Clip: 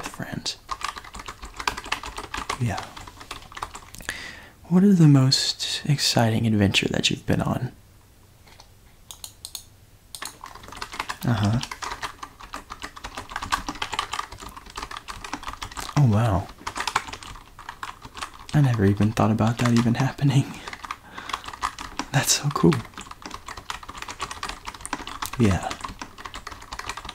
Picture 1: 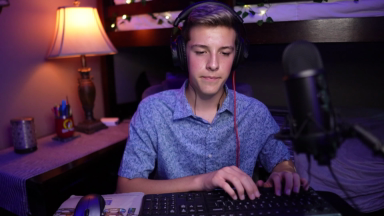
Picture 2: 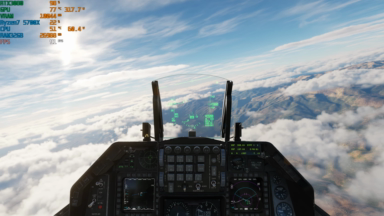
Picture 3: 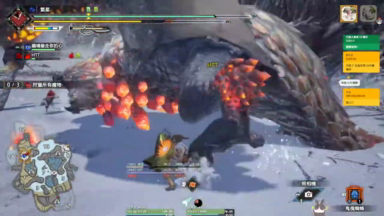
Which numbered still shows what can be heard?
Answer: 1